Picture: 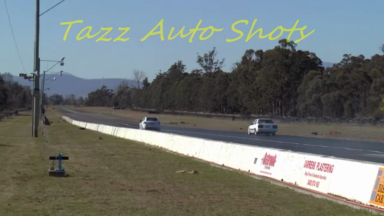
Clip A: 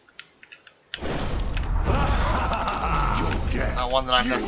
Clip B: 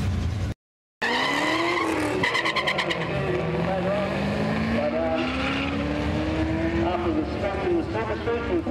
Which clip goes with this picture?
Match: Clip B